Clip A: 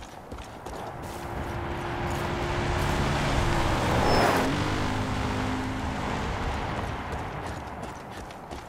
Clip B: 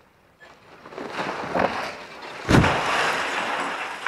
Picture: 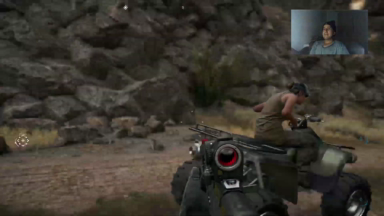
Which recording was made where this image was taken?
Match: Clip A